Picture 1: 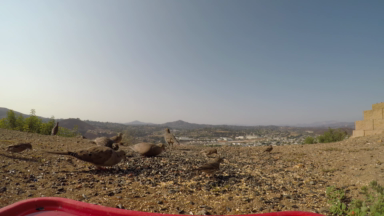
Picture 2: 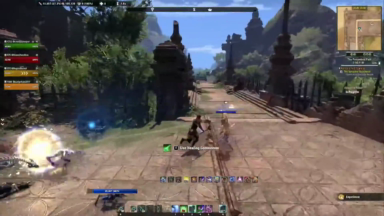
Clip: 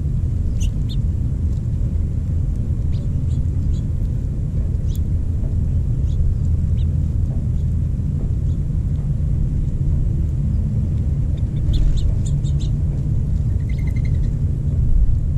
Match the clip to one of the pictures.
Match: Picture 1